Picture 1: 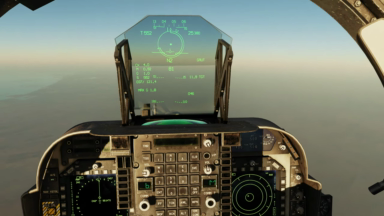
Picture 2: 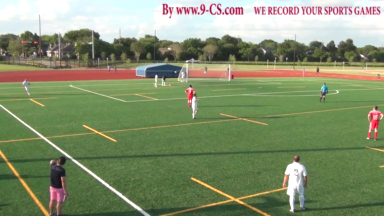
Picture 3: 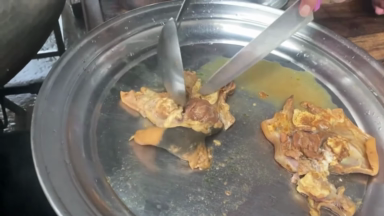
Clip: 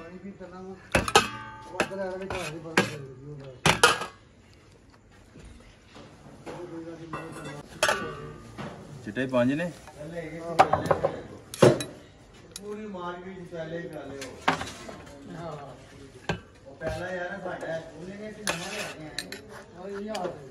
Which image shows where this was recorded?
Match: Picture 3